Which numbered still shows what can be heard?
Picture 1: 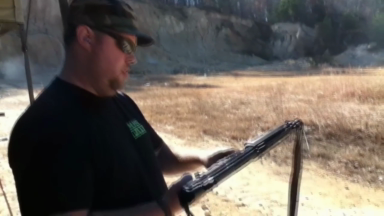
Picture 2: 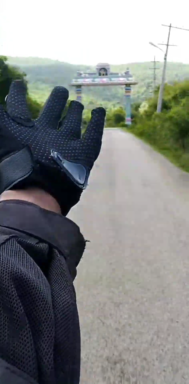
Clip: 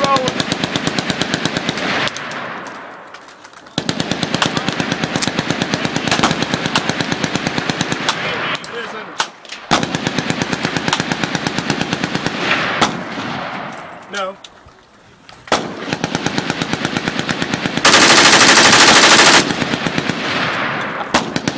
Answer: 1